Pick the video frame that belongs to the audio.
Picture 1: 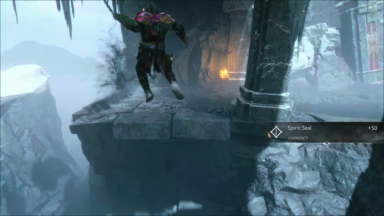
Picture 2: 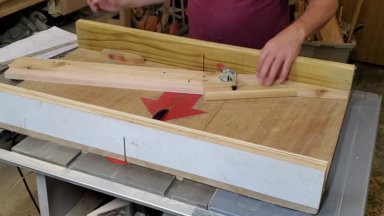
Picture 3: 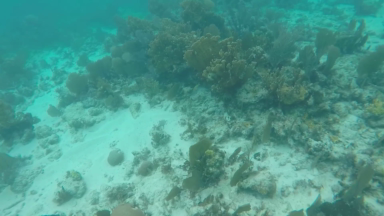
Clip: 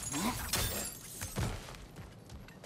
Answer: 1